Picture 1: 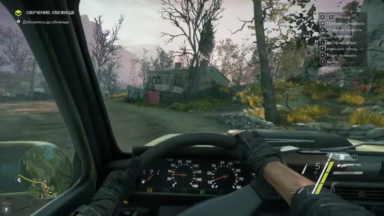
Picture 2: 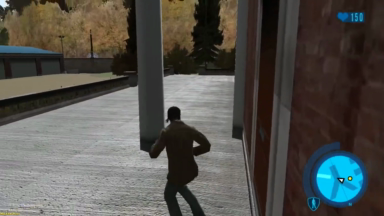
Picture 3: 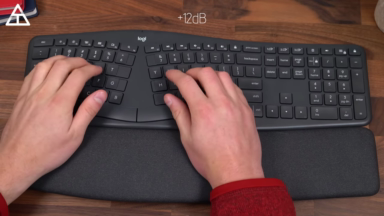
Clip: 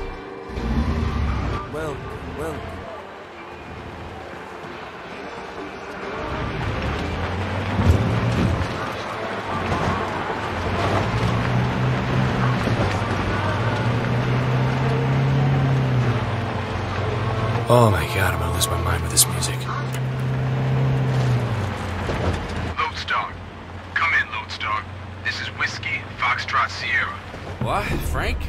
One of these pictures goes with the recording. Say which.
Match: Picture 1